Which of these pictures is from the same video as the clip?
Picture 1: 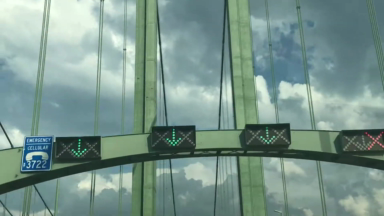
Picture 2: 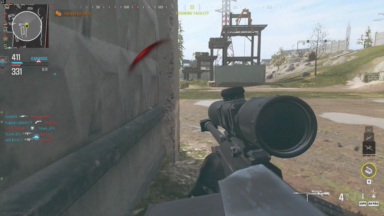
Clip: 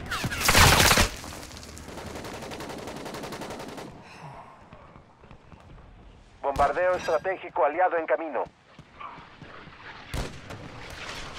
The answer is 2